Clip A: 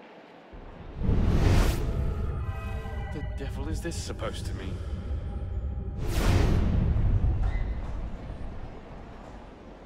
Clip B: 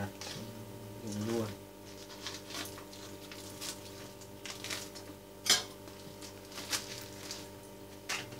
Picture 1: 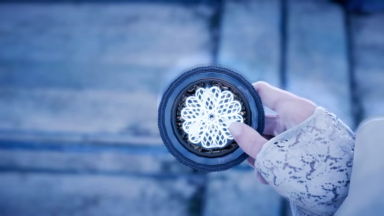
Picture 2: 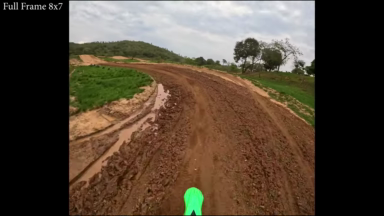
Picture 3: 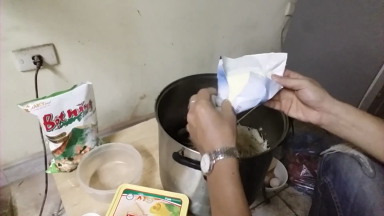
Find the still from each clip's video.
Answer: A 1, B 3